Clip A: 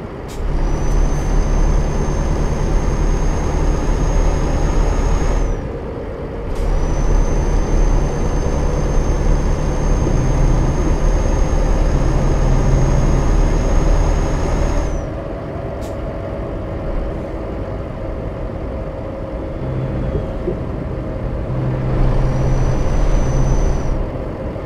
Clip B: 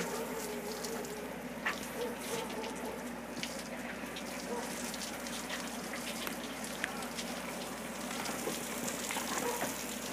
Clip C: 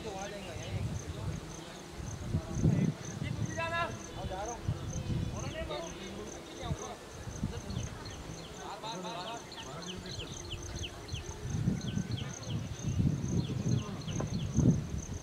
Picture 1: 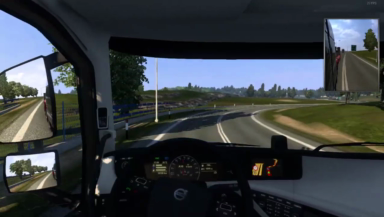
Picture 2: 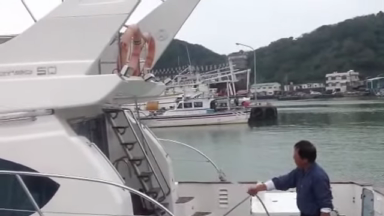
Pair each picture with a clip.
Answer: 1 A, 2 B